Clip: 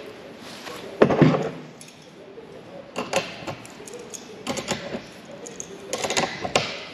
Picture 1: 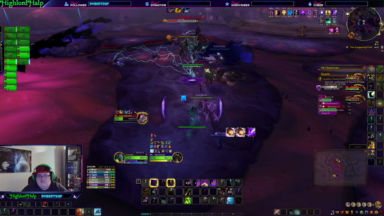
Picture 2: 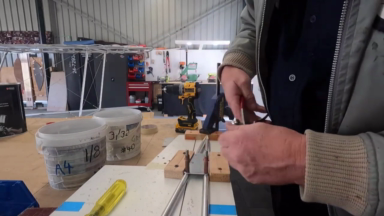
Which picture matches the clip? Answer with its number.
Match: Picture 2